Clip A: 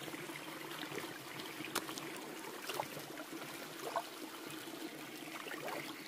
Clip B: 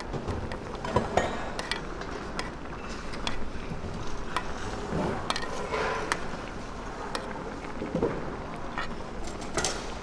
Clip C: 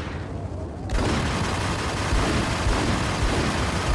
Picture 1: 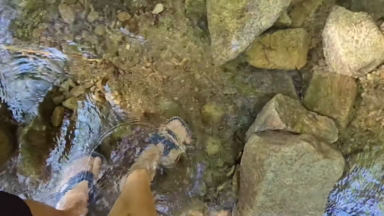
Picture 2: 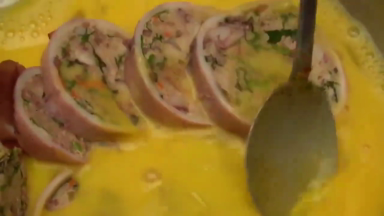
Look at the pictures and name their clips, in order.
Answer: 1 A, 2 B